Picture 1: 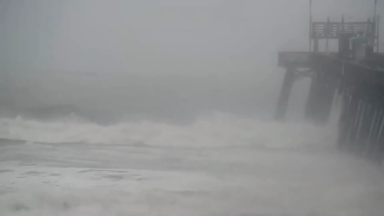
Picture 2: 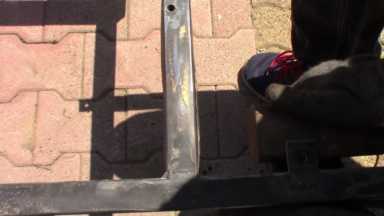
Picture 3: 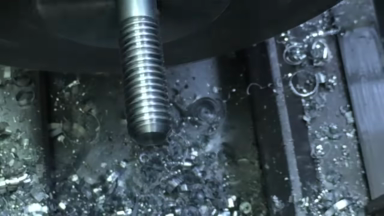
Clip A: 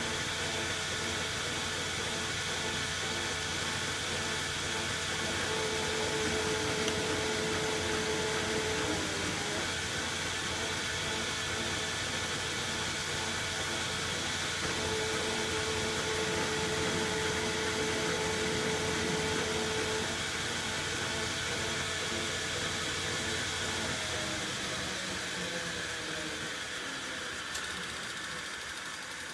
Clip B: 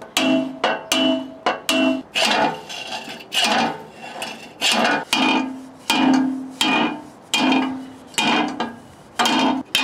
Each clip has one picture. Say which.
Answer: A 3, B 2